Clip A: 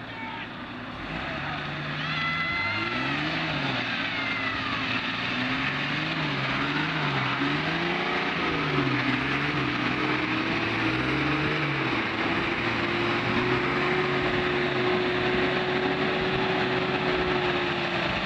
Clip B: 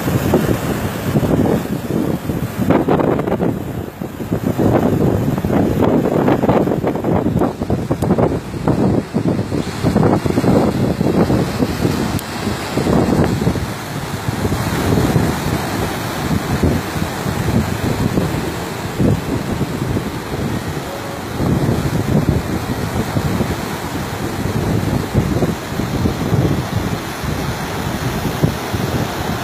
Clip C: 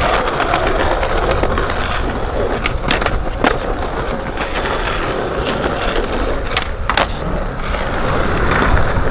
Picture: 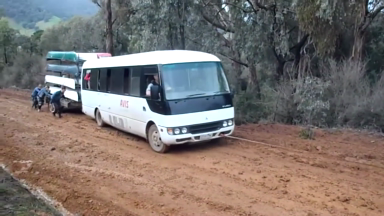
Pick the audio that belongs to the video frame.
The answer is A